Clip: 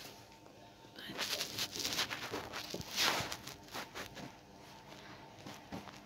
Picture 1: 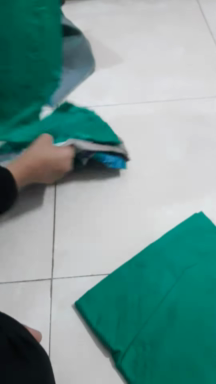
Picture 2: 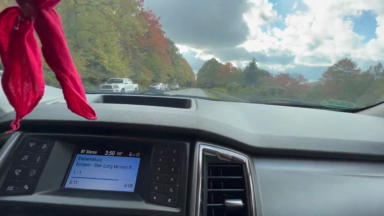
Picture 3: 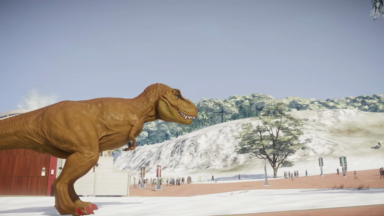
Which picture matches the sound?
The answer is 1